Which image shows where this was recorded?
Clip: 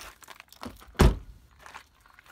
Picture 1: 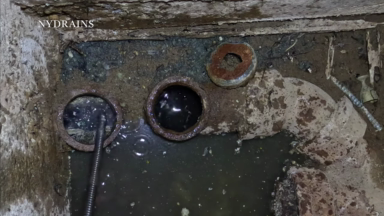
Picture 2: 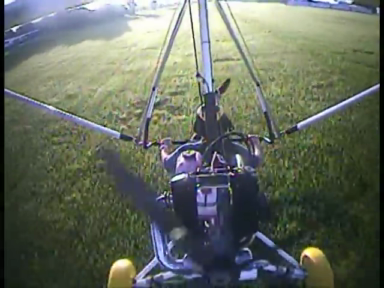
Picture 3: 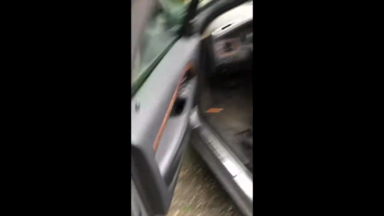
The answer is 3